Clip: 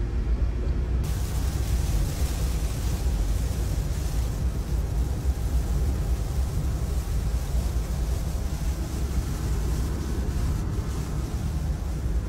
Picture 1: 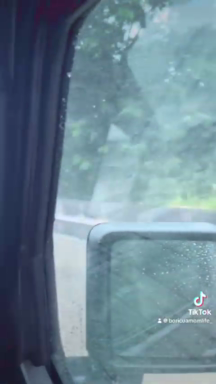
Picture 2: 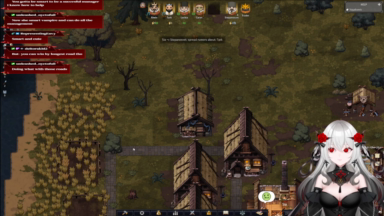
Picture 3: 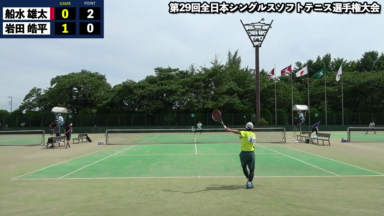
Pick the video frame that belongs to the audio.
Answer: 1